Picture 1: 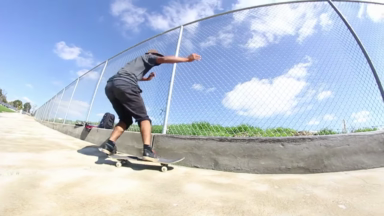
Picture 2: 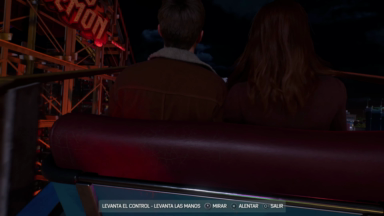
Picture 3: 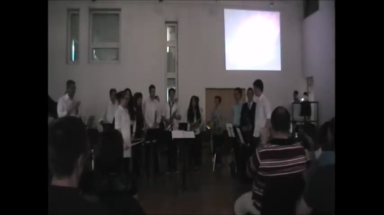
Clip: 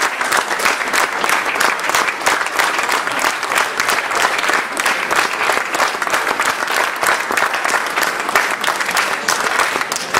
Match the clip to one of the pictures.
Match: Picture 3